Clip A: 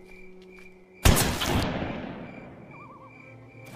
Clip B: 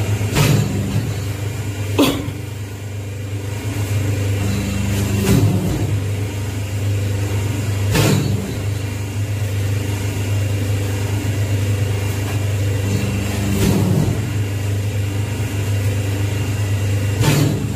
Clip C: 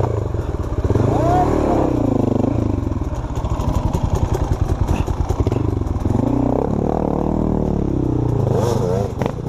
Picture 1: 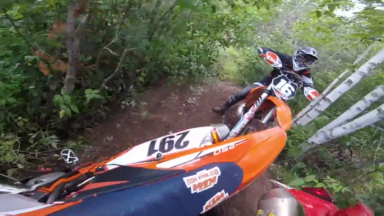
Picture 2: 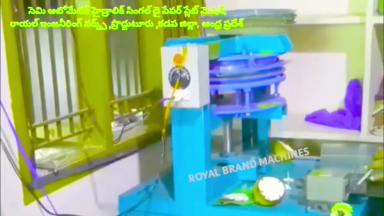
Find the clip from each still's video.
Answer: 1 C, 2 B